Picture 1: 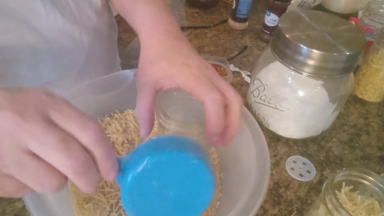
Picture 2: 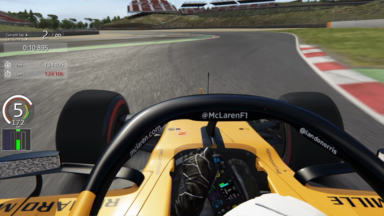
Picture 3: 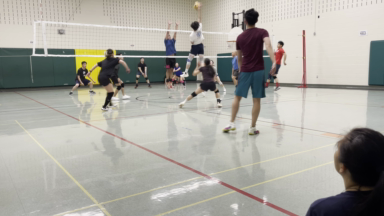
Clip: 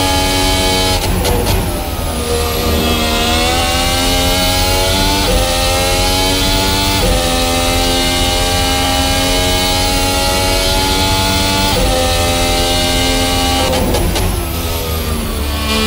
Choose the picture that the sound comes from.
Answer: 2